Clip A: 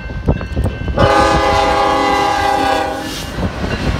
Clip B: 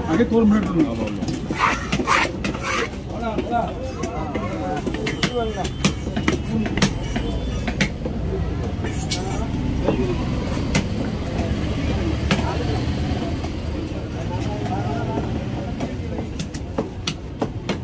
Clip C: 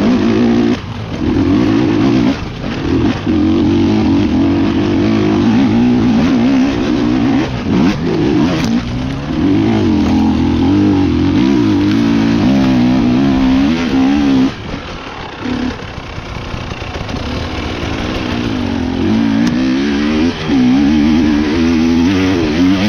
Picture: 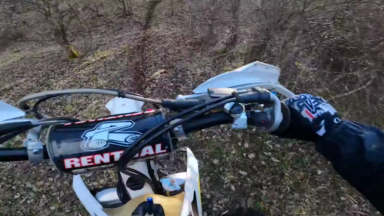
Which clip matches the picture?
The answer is C